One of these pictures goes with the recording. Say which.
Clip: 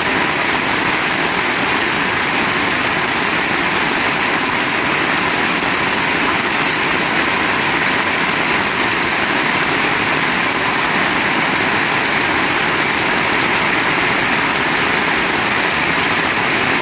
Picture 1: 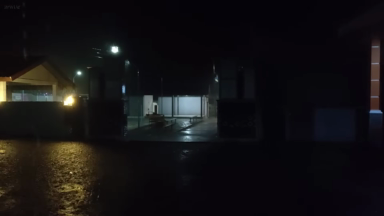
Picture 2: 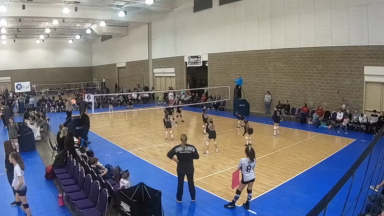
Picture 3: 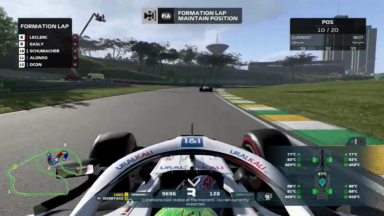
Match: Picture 1